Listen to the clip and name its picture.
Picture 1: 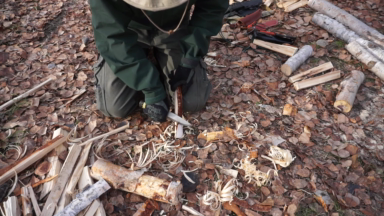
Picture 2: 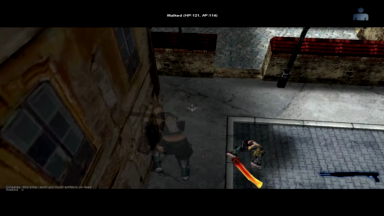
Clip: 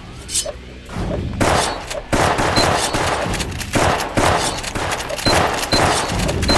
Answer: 2